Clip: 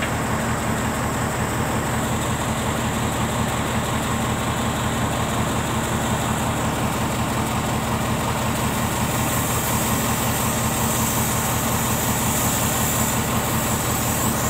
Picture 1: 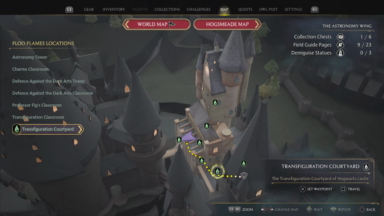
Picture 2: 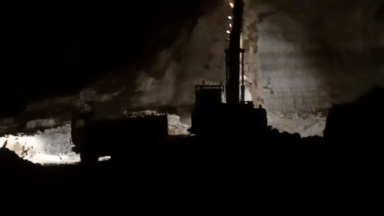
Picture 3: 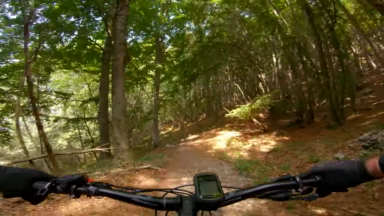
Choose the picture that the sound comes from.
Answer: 2